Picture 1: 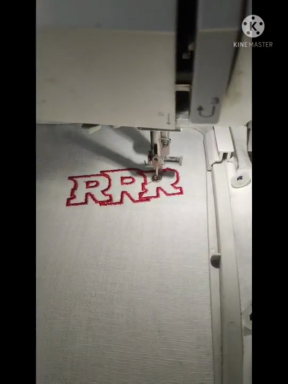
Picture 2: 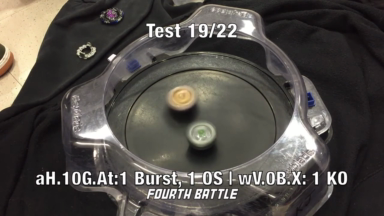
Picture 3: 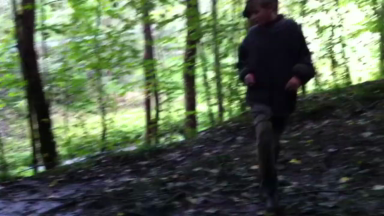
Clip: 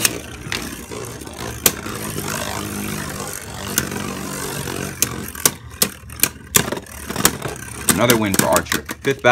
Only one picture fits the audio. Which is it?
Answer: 2